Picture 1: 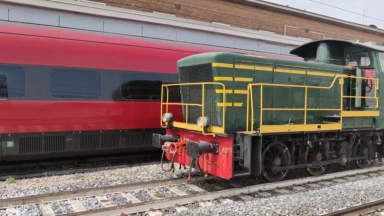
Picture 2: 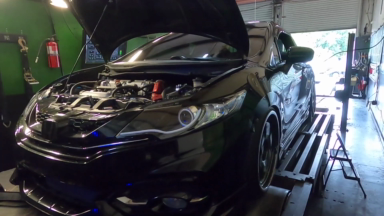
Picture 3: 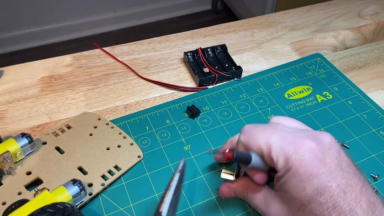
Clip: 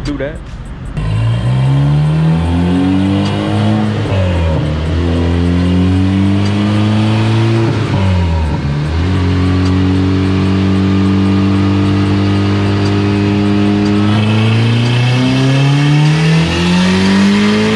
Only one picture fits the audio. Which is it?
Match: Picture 2